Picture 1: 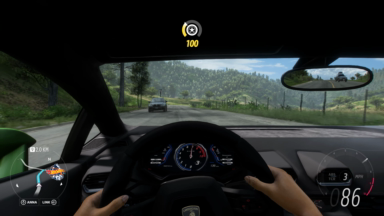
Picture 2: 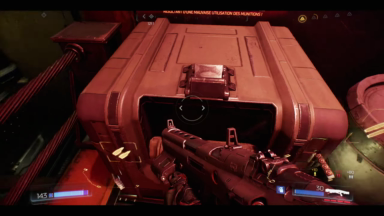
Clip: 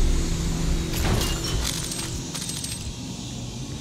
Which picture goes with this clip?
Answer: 2